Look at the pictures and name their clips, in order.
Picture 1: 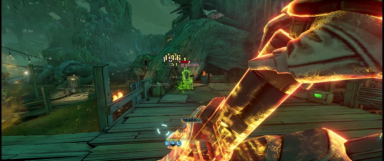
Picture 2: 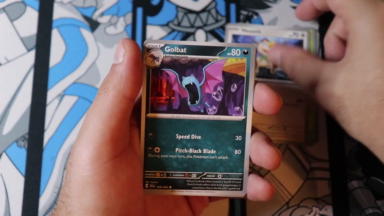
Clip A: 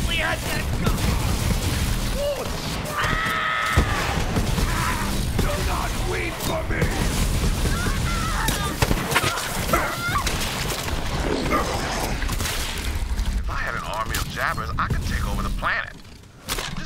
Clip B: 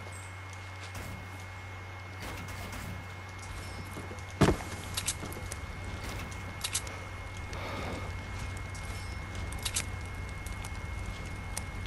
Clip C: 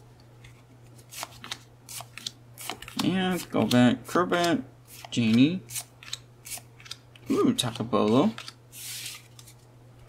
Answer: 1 A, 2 C